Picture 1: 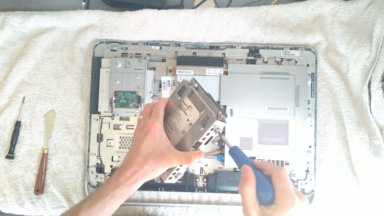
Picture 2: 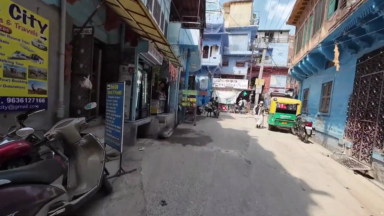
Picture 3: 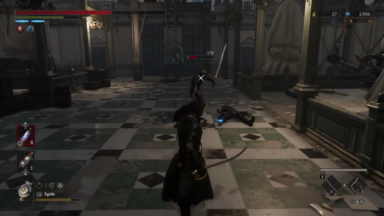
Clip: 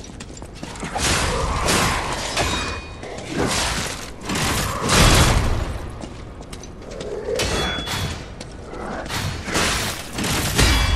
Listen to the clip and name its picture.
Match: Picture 3